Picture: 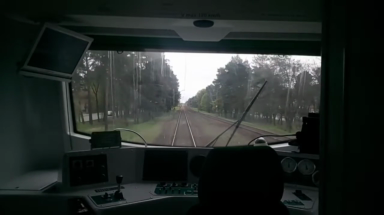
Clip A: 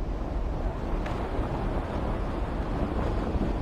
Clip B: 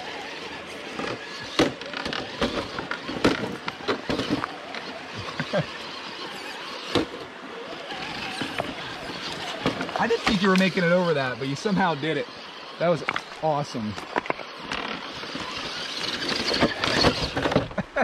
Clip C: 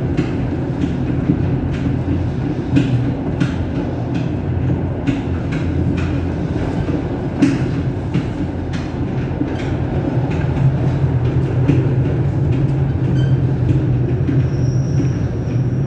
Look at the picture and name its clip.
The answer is C